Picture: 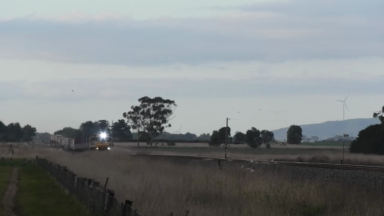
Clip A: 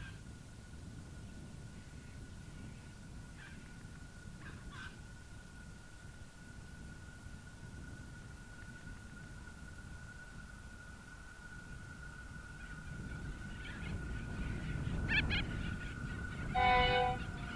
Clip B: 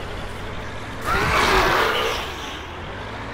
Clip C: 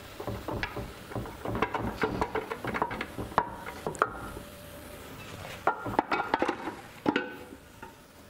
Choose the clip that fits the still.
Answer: A